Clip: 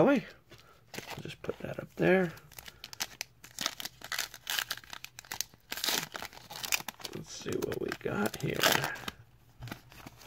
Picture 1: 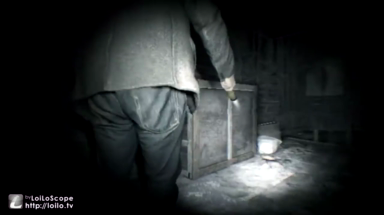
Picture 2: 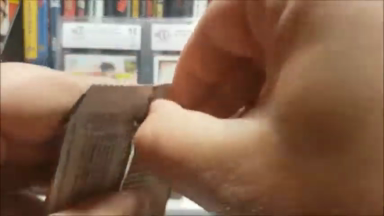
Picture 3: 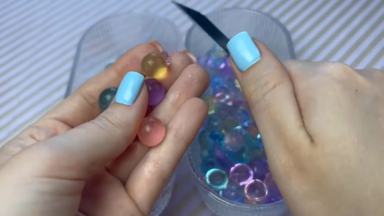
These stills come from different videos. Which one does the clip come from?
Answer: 2